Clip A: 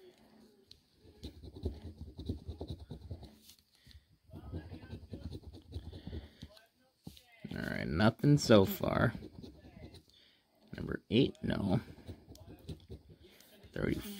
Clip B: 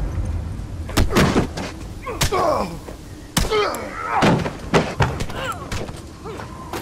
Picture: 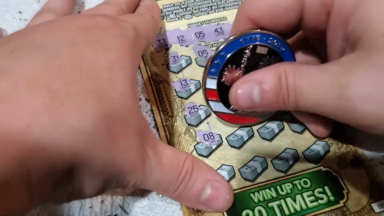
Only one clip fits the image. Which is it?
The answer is A